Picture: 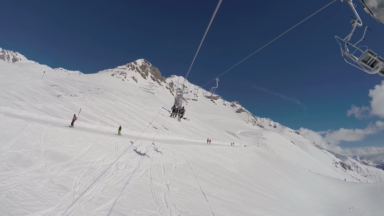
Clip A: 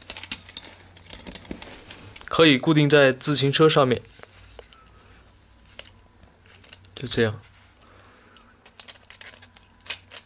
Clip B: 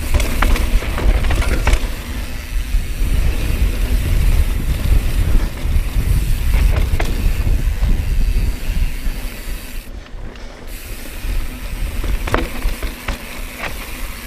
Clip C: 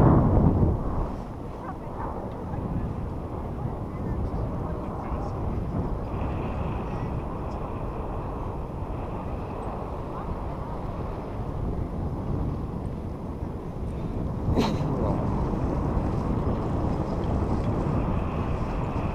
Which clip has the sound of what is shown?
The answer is C